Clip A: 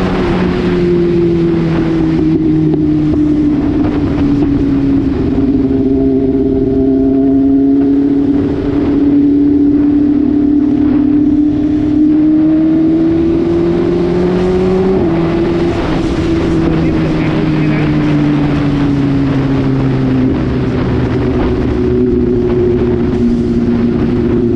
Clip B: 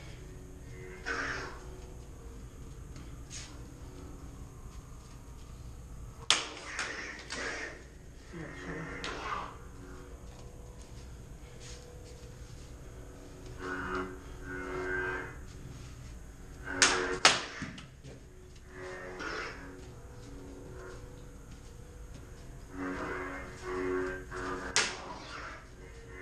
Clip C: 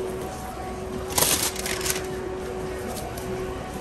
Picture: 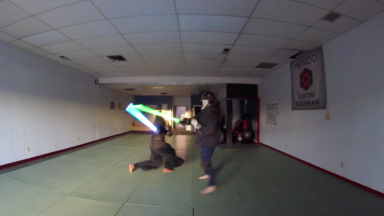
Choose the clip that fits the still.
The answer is B